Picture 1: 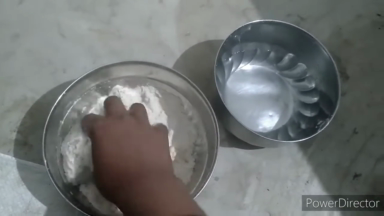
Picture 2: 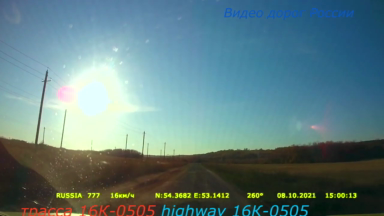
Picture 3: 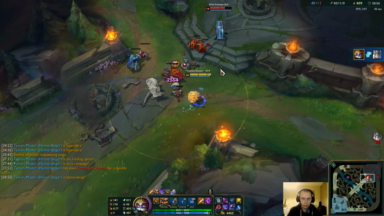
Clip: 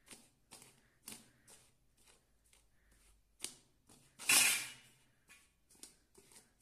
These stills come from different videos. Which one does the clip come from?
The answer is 1